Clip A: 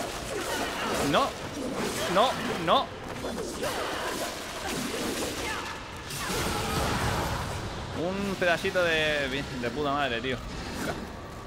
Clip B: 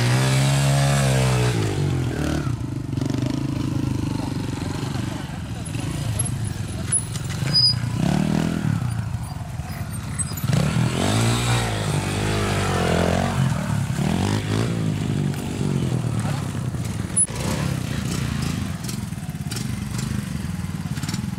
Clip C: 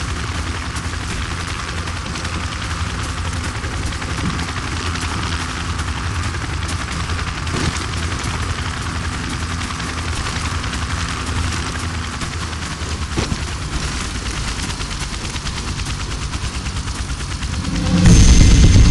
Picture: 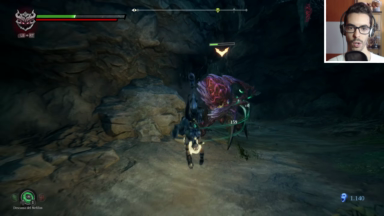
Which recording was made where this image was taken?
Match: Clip A